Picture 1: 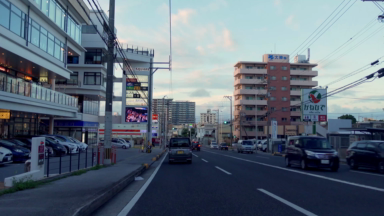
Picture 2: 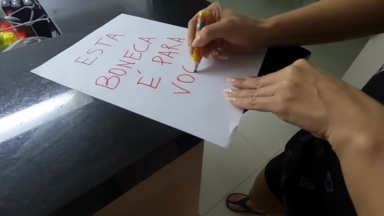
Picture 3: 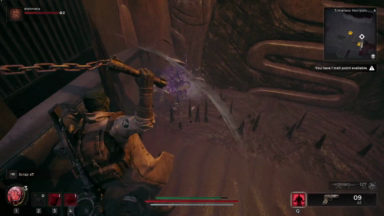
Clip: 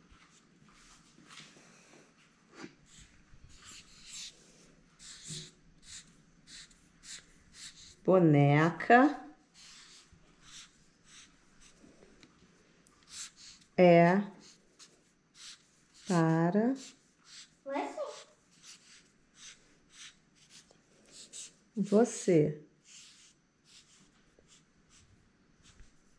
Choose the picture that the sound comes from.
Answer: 2